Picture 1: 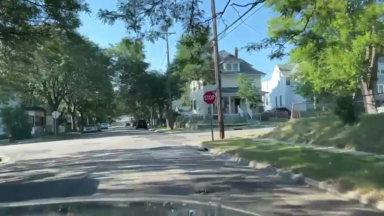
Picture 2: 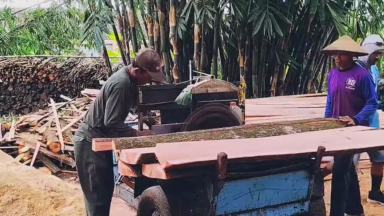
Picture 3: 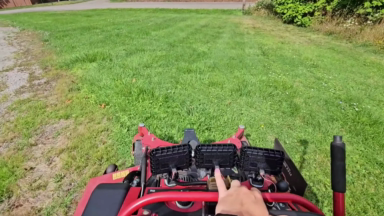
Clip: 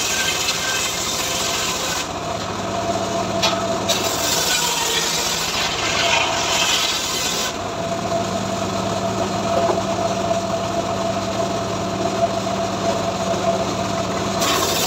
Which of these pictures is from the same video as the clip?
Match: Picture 2